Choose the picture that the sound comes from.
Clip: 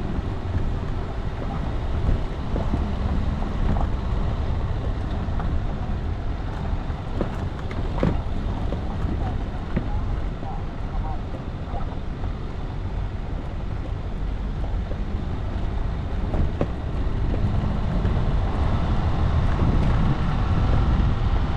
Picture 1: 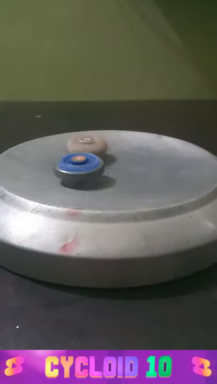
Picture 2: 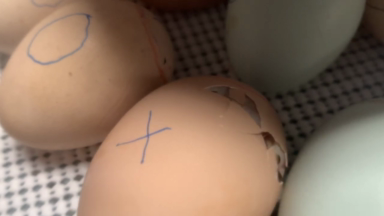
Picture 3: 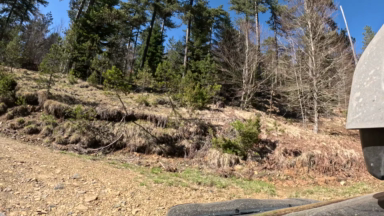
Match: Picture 3